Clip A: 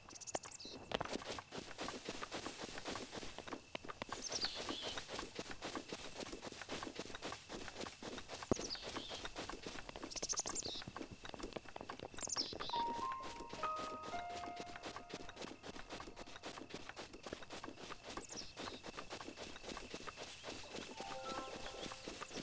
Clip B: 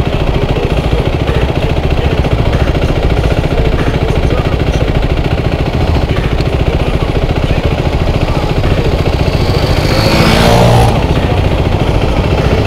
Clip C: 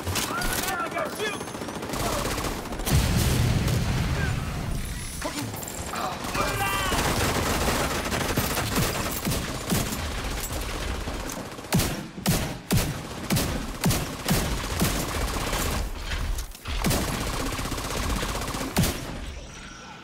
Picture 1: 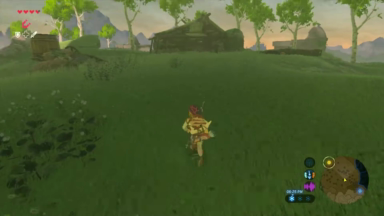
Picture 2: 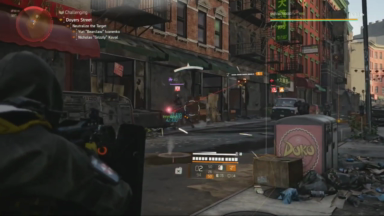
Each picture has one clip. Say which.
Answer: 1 A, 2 C